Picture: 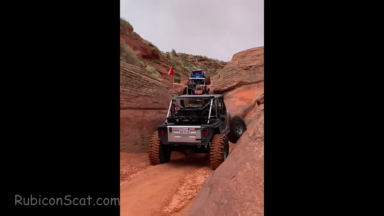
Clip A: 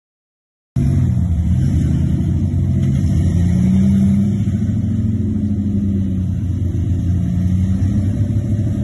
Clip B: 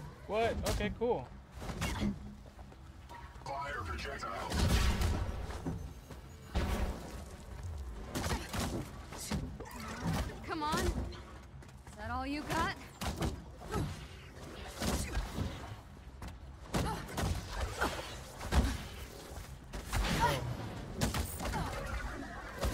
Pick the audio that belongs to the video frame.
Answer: A